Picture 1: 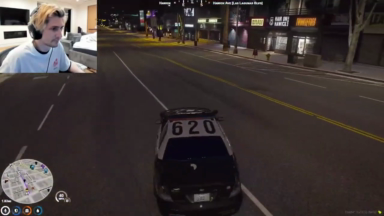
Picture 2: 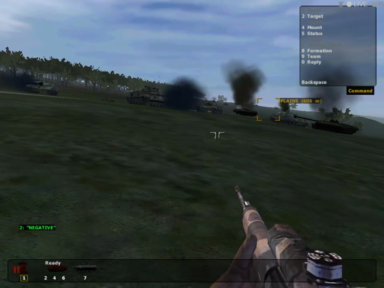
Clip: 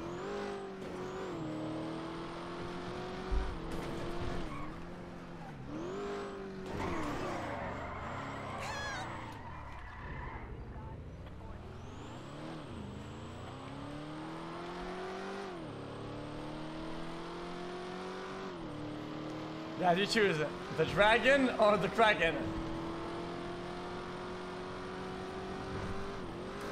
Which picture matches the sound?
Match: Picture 1